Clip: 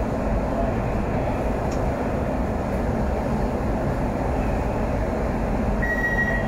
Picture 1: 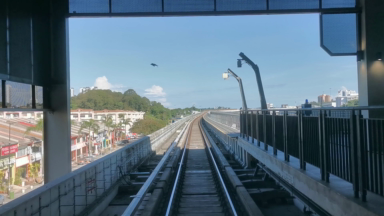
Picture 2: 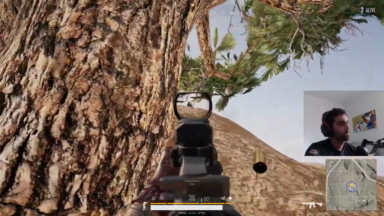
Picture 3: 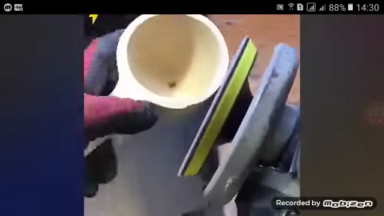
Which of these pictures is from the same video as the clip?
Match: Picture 1